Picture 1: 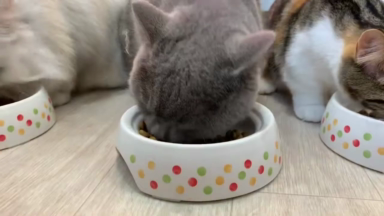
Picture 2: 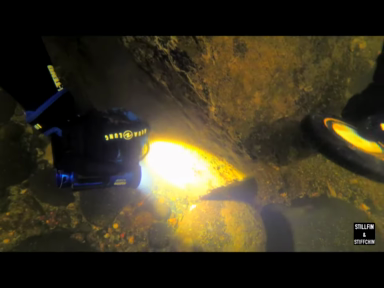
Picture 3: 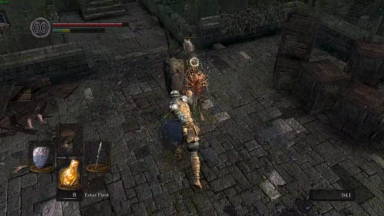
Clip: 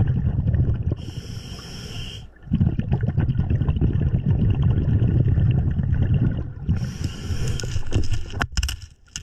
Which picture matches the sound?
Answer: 2